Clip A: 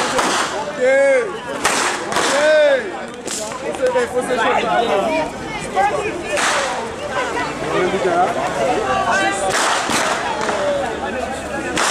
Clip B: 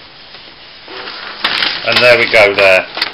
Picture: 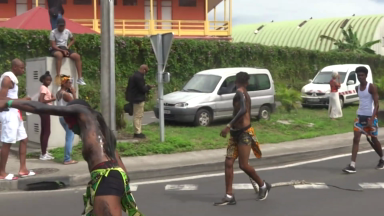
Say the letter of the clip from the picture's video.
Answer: A